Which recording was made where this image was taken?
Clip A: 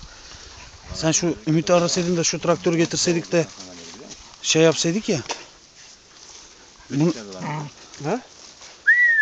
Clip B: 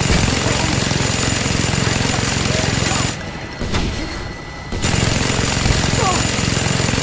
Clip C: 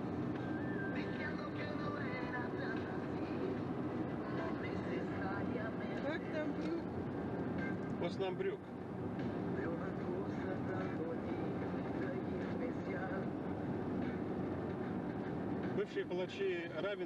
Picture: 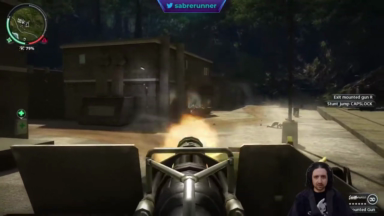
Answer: B